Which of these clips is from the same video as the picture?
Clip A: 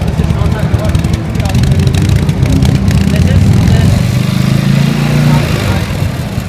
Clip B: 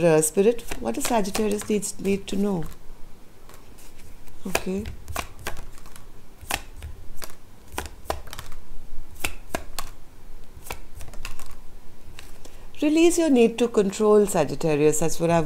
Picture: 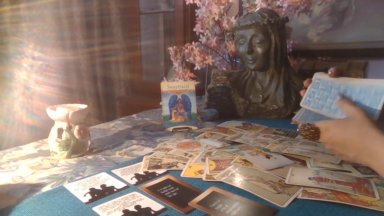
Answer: B